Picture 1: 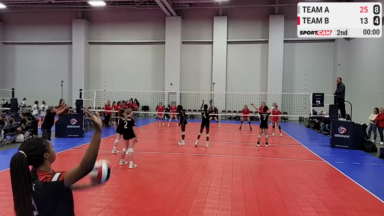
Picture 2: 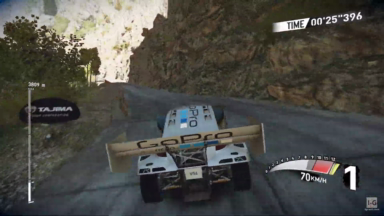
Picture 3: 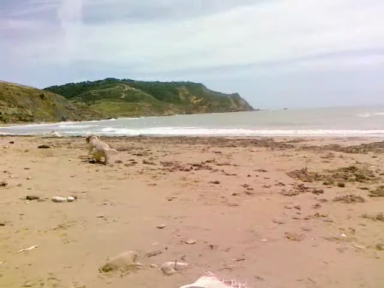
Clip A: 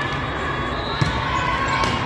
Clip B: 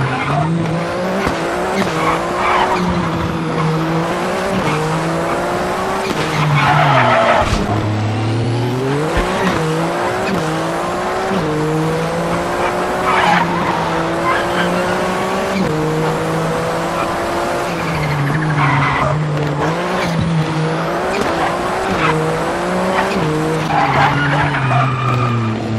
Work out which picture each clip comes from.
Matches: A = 1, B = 2